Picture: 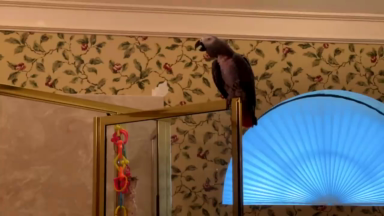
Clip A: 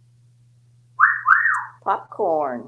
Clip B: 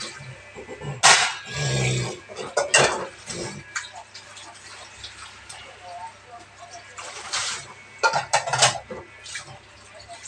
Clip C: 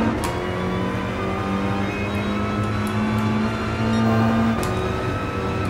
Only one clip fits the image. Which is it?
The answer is A